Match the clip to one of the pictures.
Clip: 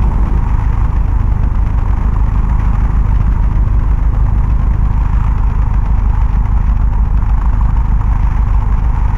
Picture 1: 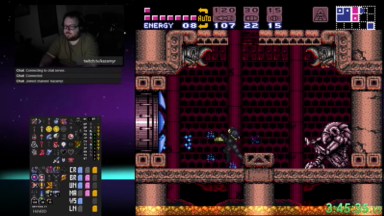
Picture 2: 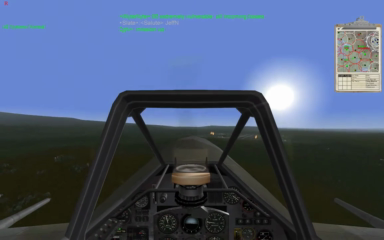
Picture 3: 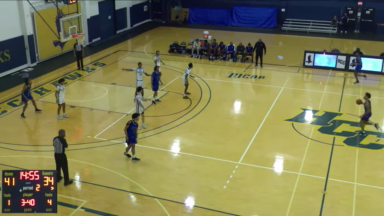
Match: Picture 2